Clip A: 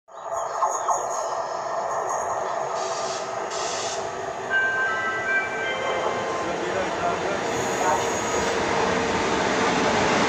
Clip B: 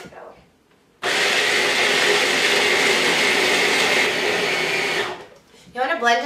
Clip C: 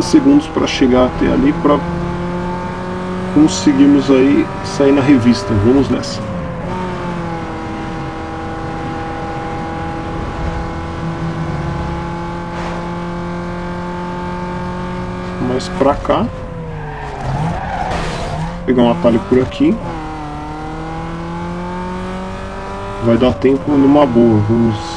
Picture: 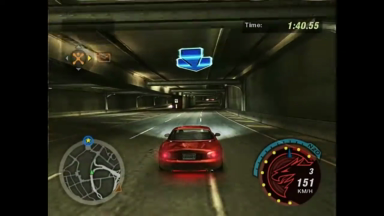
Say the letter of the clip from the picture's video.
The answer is C